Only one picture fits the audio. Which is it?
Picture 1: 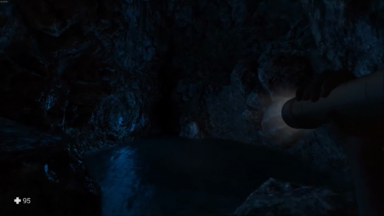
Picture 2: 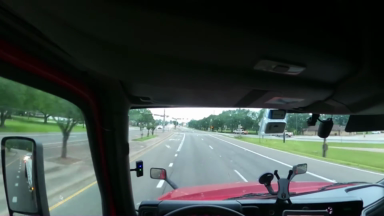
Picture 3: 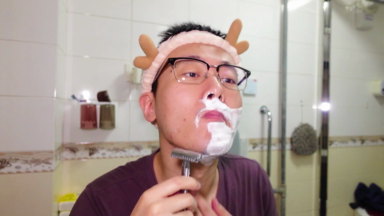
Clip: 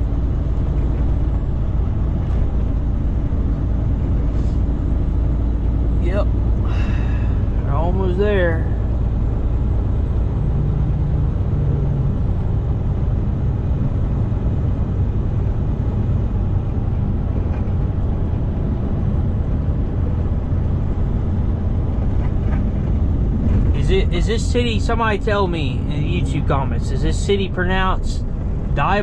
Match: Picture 2